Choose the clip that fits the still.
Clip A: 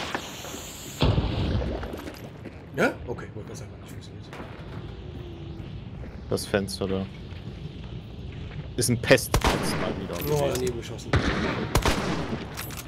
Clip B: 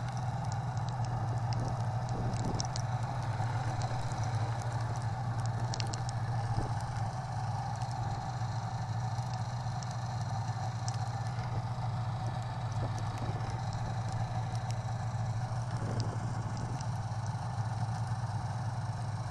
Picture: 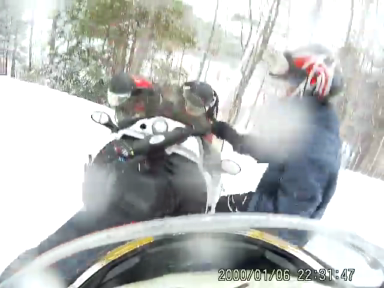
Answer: B